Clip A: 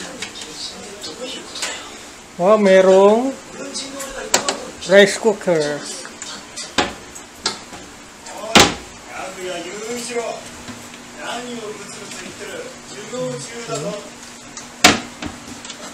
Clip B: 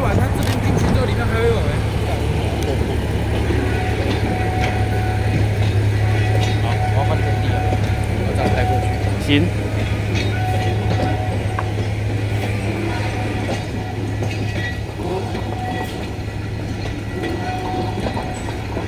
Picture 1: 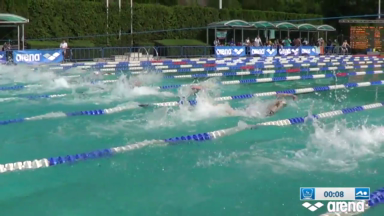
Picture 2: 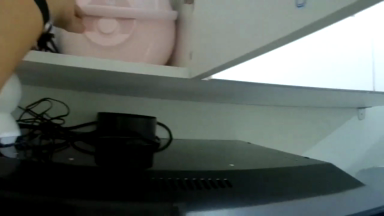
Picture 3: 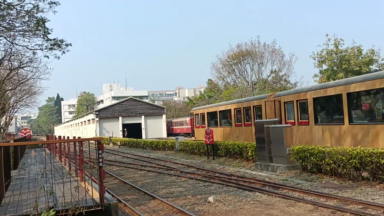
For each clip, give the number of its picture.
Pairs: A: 2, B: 3